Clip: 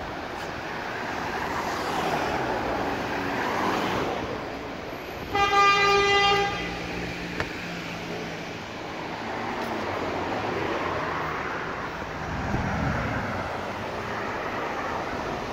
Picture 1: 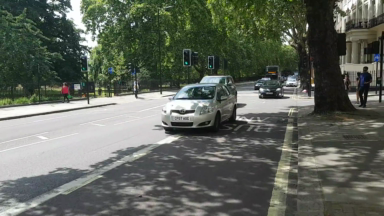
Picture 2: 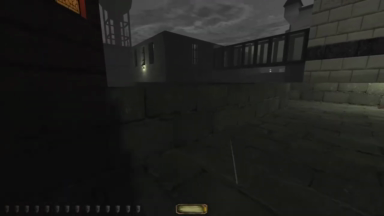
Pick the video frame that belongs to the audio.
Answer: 1